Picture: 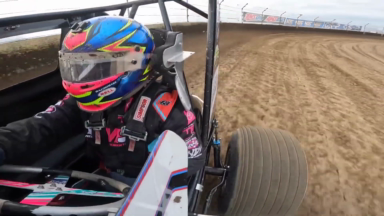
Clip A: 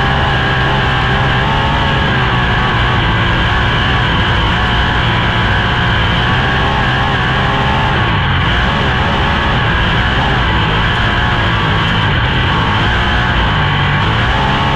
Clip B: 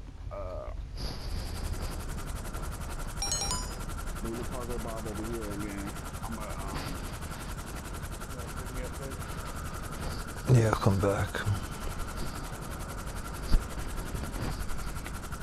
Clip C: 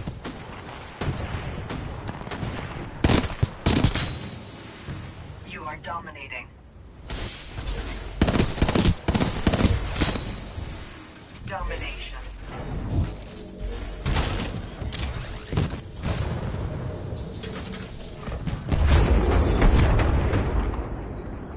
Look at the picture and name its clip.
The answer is A